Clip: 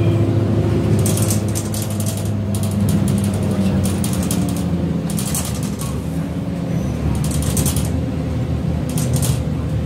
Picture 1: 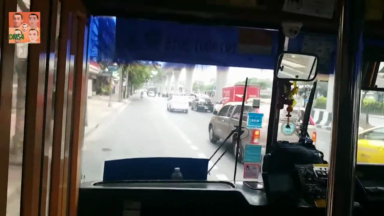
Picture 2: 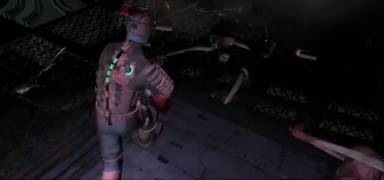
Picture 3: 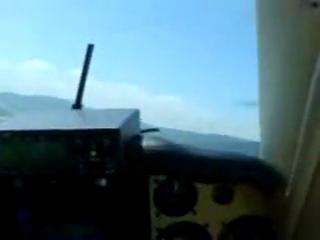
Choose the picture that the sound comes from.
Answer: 1